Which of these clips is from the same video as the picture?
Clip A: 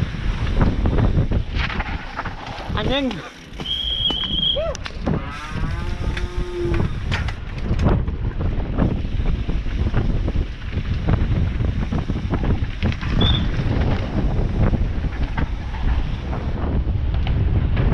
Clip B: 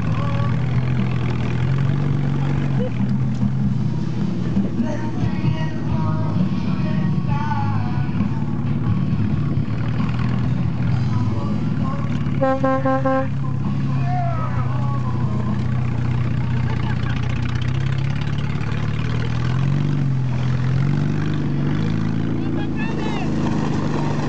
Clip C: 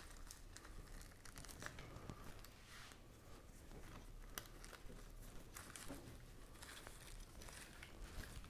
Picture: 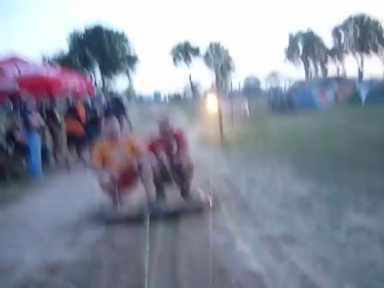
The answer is B